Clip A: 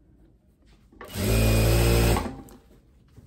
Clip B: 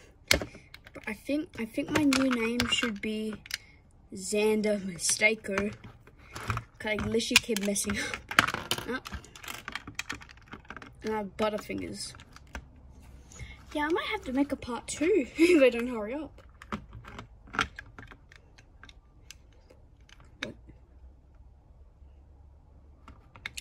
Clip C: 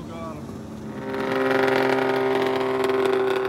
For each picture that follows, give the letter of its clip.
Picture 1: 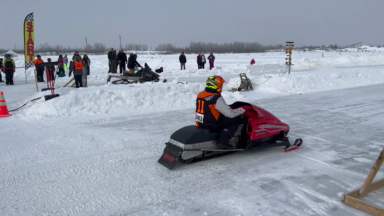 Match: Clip C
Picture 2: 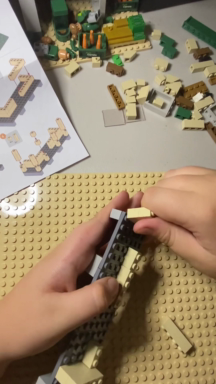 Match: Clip B